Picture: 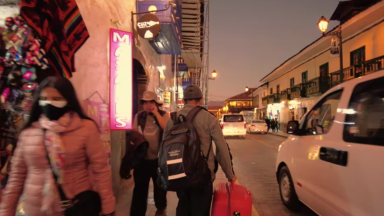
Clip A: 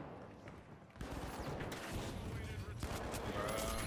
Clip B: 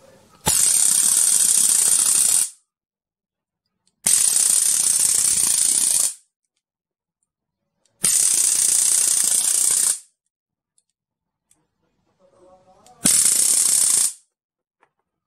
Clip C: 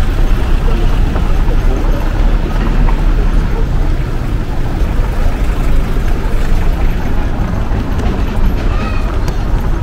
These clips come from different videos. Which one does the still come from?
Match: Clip C